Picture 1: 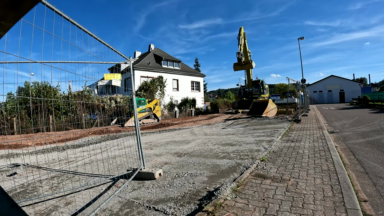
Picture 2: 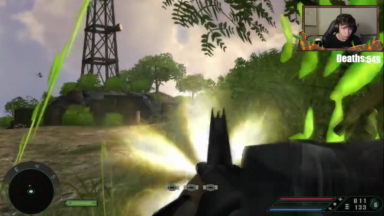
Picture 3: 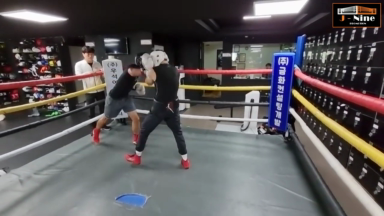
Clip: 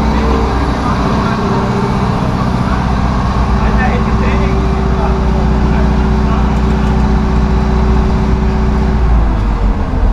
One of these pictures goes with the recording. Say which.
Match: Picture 1